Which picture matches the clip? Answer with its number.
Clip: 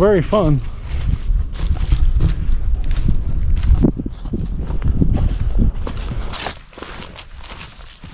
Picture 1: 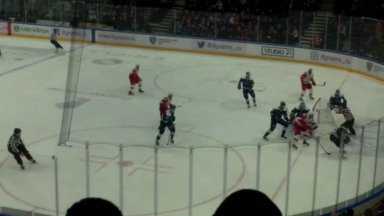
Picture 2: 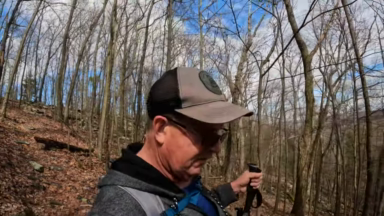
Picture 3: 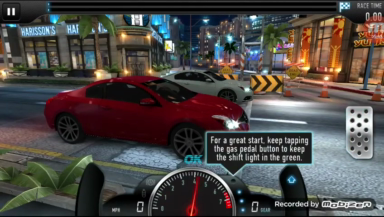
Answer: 2